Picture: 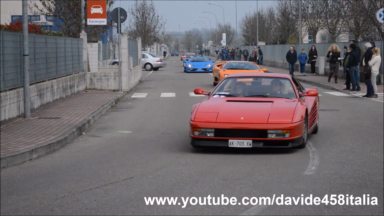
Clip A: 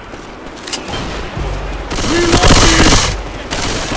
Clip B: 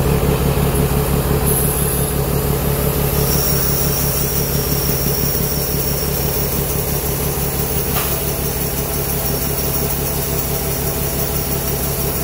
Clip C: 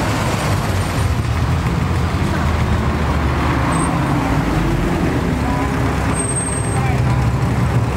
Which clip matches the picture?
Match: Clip C